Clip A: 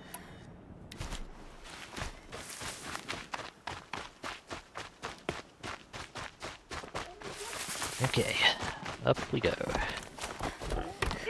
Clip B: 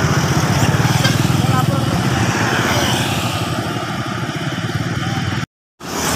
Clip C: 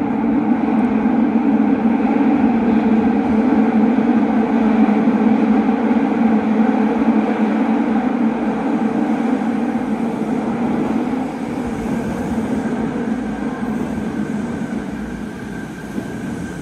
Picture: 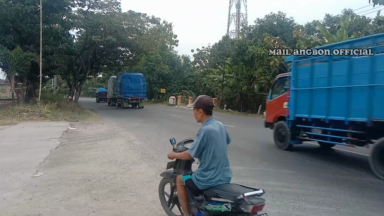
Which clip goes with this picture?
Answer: B